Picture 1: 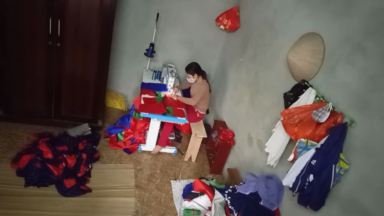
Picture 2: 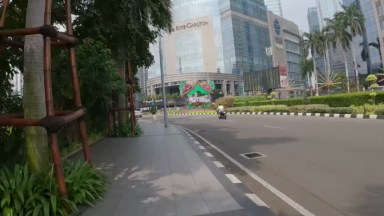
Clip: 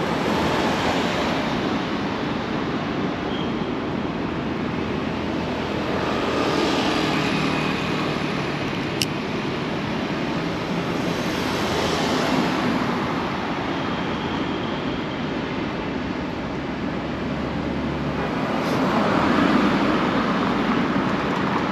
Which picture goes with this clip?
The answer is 2